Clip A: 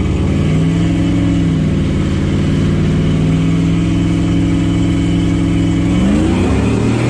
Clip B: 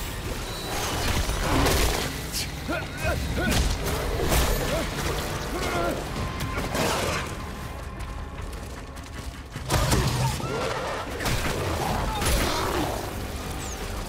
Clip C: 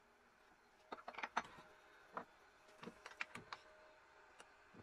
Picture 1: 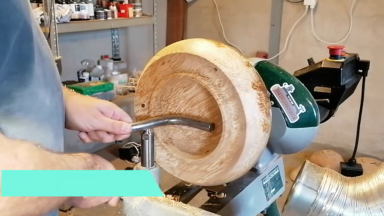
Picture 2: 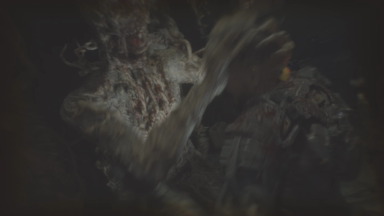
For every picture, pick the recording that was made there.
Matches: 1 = C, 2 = B